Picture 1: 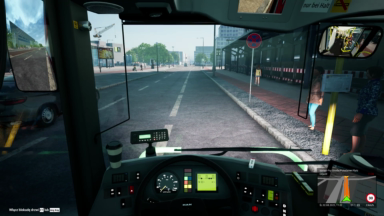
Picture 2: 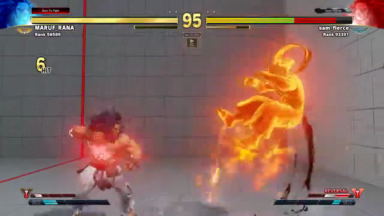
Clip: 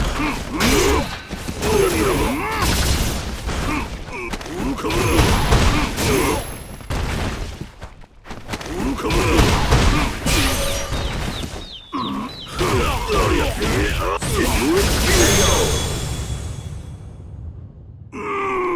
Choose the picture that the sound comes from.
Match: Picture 2